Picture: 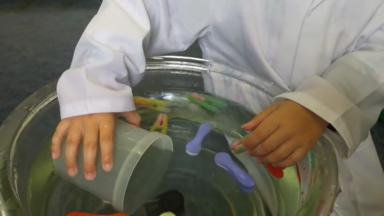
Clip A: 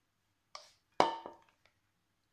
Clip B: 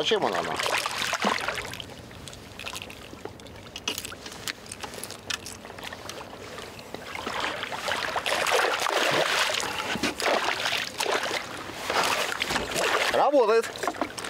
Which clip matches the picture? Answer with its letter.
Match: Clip A